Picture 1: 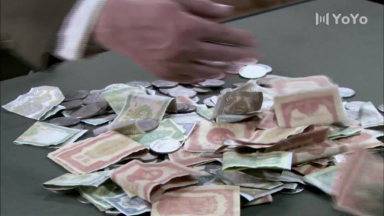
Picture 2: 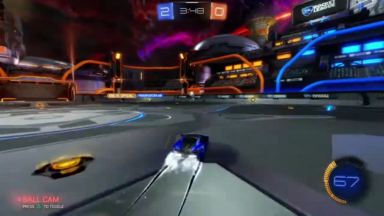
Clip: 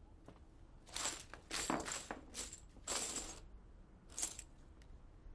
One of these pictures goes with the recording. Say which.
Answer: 1